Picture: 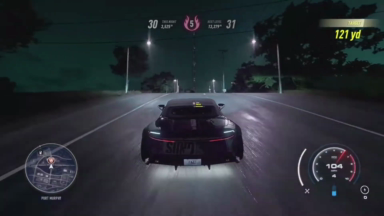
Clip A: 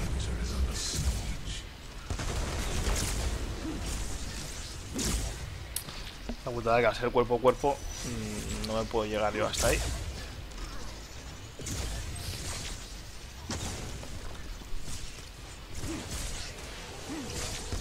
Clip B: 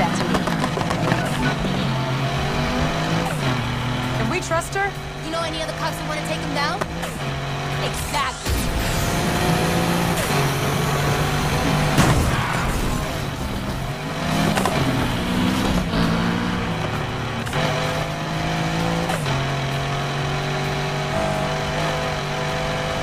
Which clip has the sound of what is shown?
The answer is B